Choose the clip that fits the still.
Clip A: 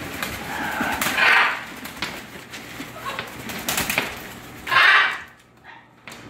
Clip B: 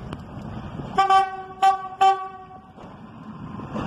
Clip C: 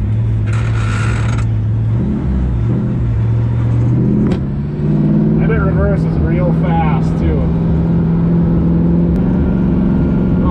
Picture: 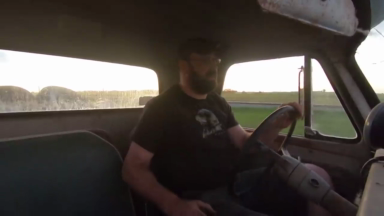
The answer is C